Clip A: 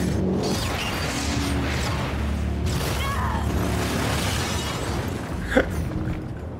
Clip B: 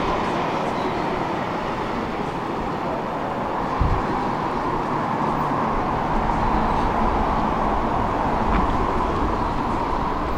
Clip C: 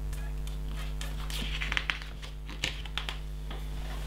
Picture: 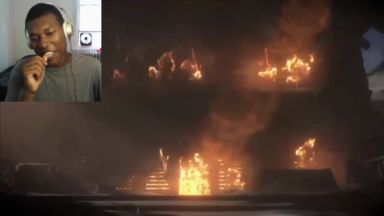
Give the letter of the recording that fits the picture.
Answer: A